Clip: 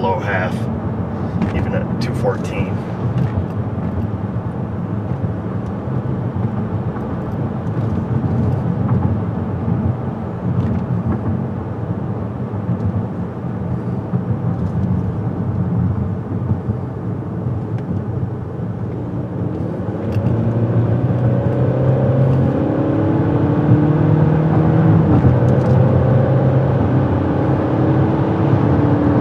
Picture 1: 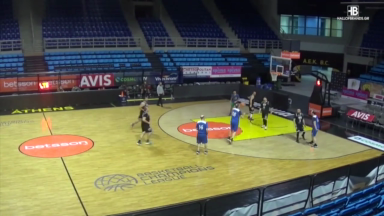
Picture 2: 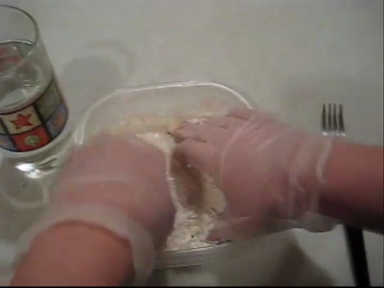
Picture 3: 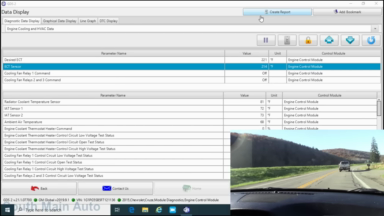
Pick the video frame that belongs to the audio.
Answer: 3